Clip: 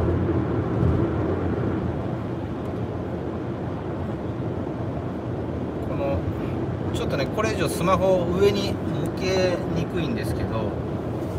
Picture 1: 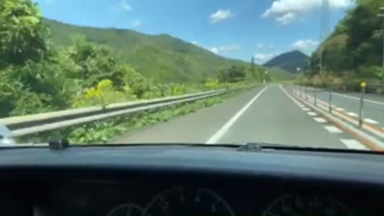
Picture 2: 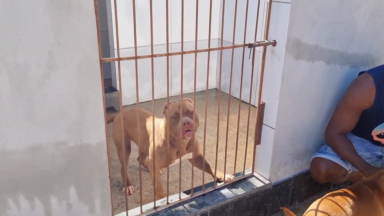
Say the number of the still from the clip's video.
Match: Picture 1